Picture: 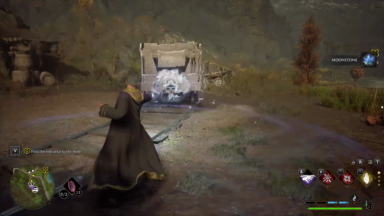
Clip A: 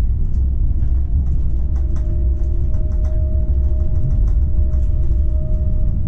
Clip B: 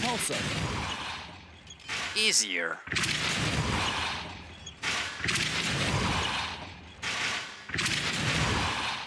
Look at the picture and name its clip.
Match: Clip B